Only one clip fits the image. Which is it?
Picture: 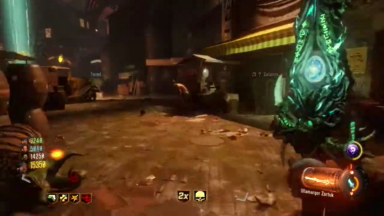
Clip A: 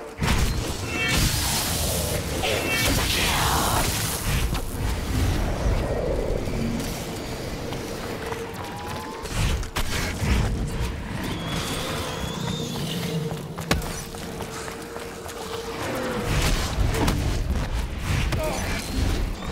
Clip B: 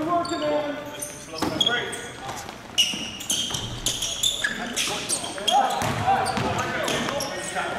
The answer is A